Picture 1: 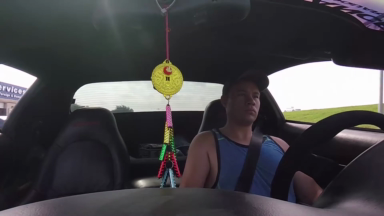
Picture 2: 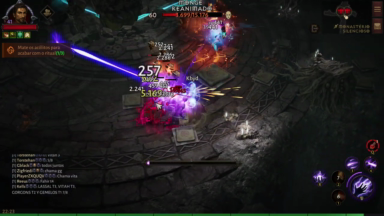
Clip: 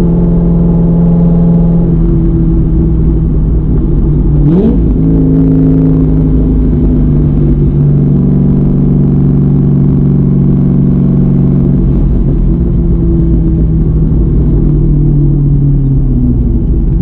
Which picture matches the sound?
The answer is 1